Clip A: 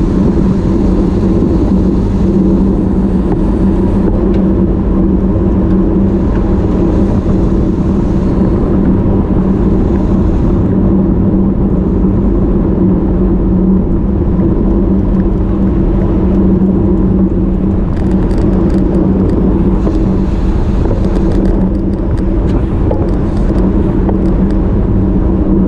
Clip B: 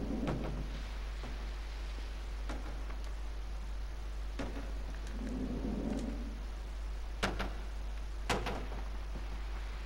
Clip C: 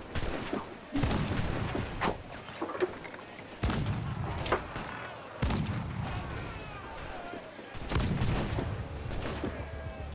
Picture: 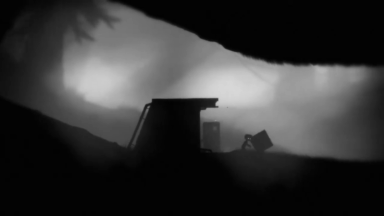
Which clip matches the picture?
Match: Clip B